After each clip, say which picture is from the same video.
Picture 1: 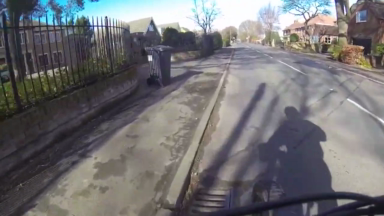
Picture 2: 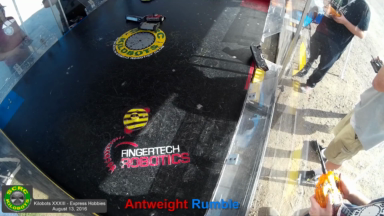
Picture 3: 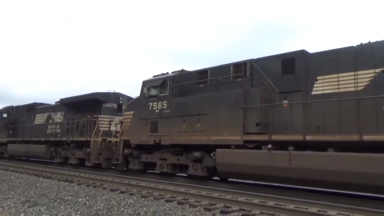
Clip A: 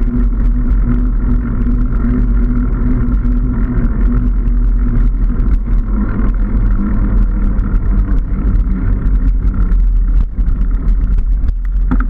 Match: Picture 1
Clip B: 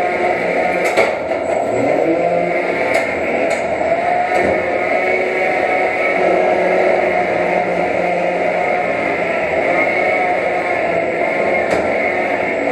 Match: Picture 2